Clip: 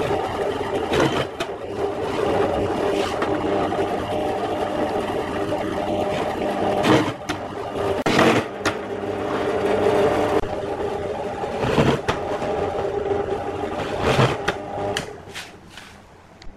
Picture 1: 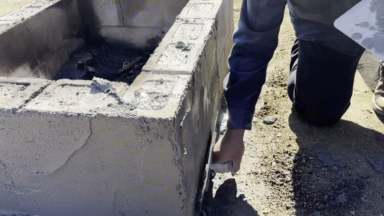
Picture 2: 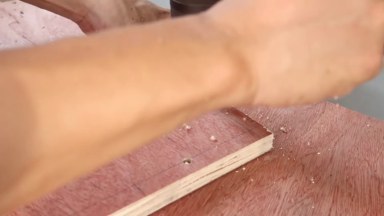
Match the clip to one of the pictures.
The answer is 2